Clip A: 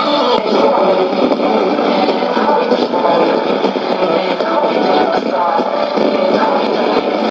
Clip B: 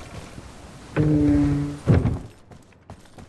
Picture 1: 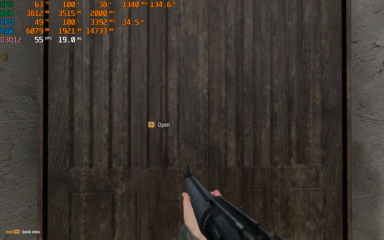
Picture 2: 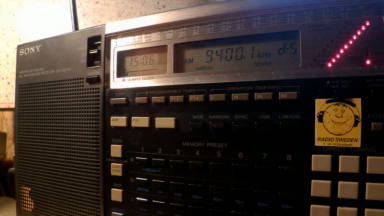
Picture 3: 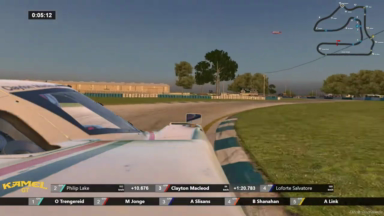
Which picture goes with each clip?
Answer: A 2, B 1